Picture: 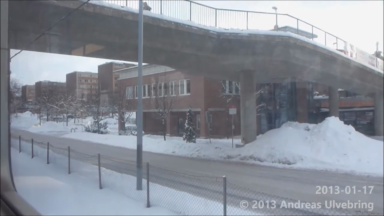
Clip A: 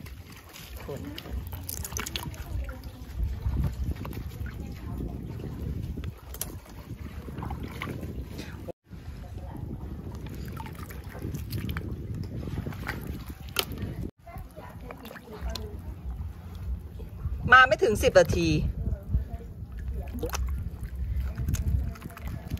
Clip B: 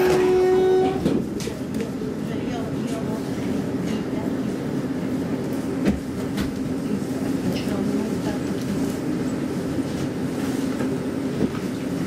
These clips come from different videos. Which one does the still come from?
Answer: B